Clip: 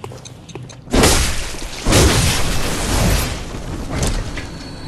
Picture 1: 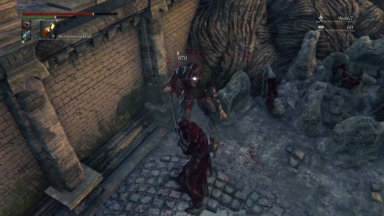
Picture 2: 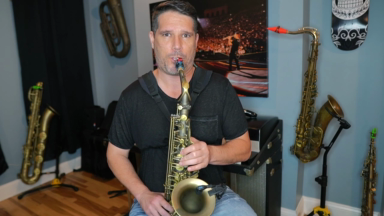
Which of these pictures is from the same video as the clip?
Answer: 1